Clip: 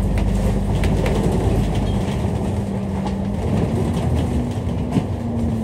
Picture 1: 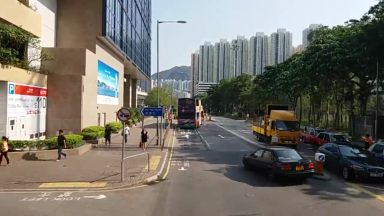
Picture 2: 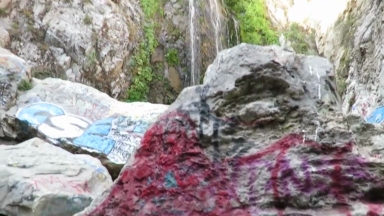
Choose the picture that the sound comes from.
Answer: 1